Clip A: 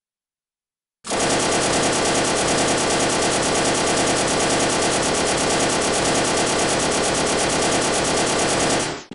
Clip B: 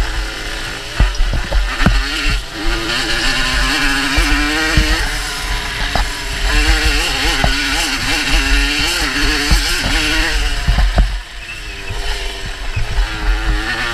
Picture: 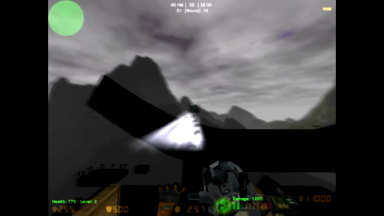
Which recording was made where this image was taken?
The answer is A